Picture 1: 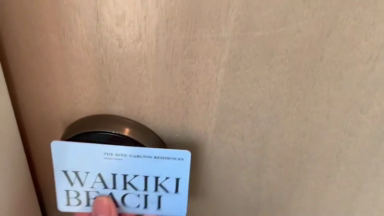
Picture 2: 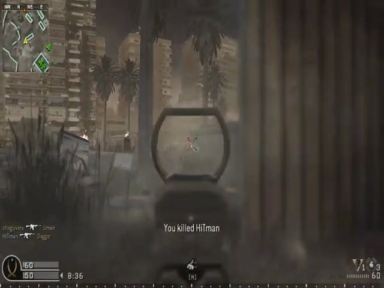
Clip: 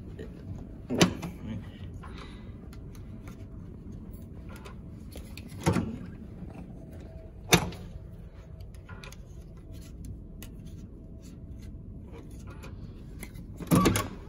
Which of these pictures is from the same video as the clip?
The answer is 1